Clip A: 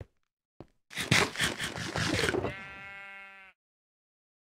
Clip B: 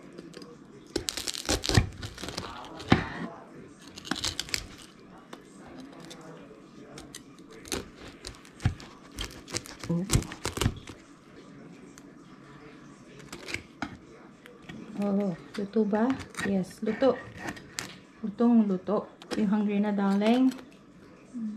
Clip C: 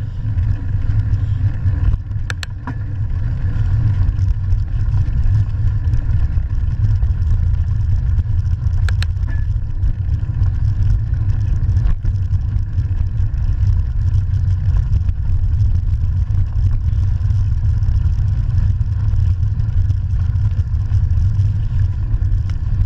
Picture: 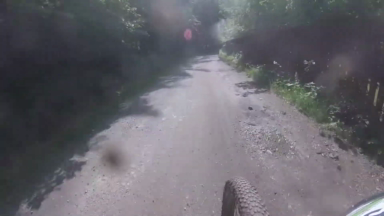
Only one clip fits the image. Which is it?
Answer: C